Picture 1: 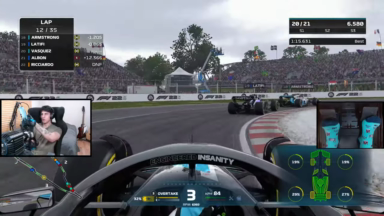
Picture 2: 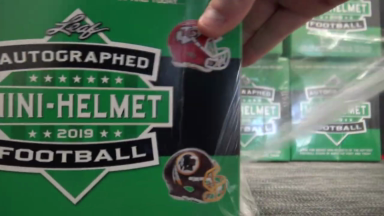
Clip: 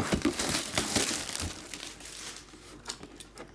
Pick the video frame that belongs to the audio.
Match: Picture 2